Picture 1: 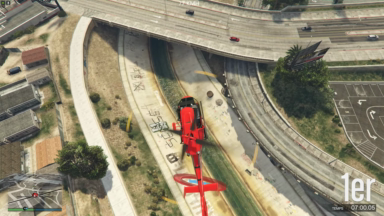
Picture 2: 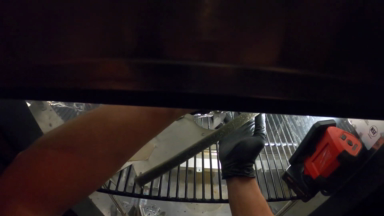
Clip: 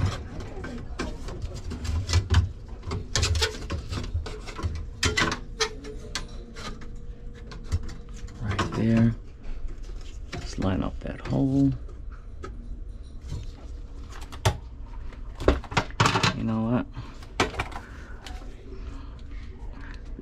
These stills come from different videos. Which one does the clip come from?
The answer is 2